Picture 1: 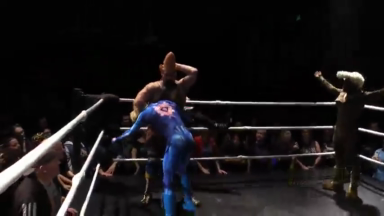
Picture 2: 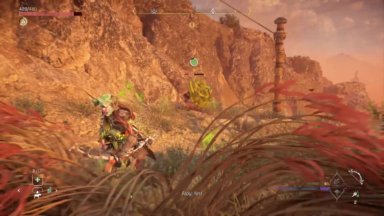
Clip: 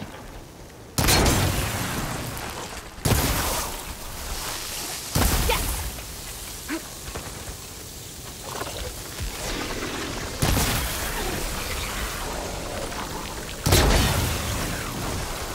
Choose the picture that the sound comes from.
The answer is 2